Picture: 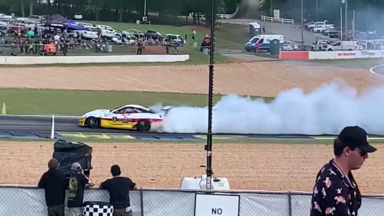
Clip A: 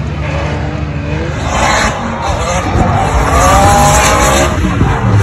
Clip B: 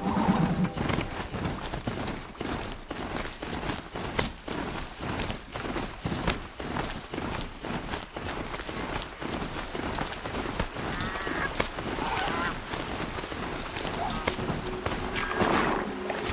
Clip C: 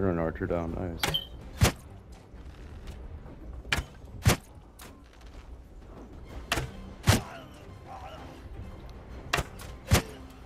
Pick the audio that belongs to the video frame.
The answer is A